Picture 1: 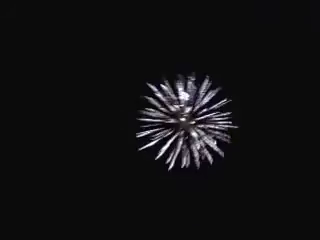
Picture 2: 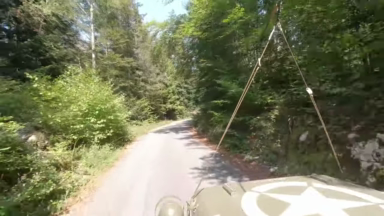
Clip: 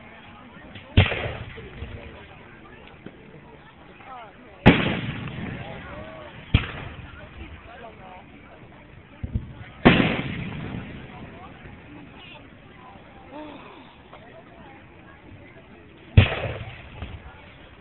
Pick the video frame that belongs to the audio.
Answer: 1